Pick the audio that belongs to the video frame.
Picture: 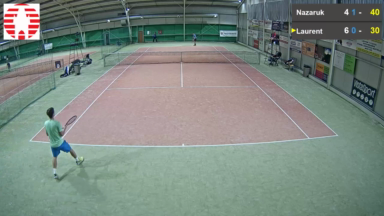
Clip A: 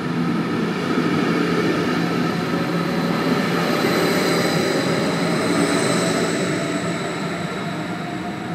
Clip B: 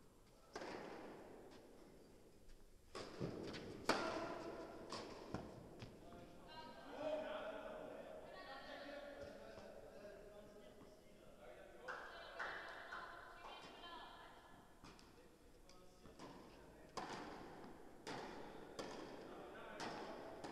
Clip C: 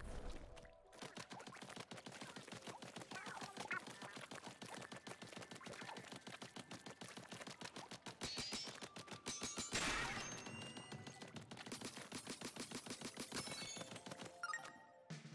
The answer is B